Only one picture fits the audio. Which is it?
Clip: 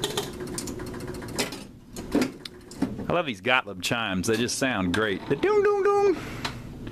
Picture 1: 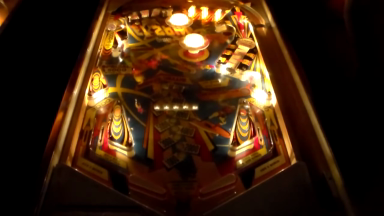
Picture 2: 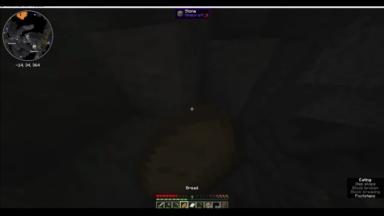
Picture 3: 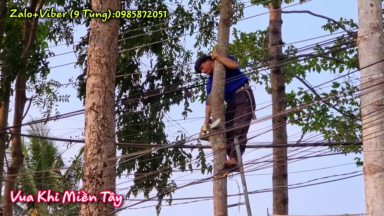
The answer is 1